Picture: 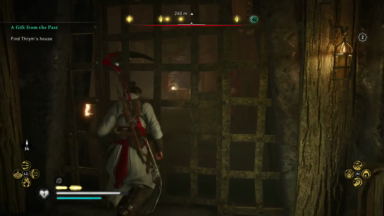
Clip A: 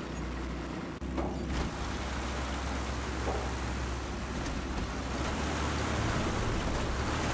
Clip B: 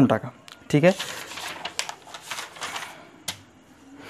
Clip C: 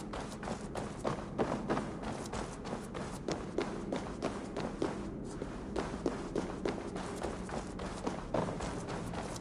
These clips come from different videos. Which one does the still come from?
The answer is C